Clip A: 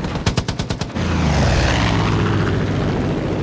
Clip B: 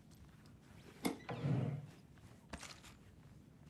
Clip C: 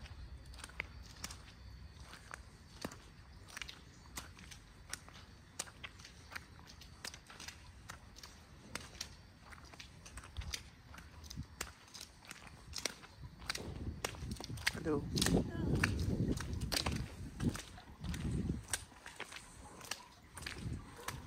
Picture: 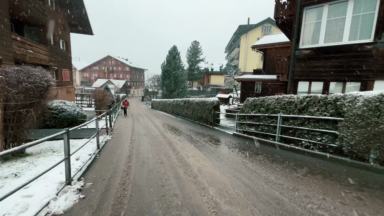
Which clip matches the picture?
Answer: C